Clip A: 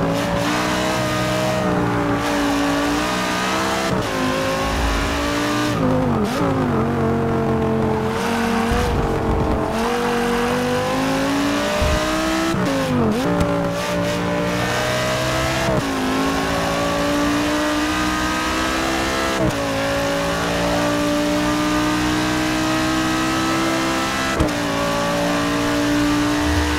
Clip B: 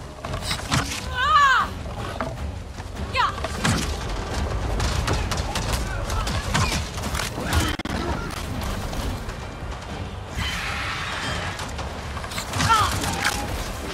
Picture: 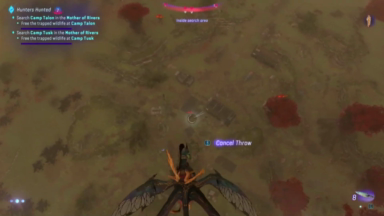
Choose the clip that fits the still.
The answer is B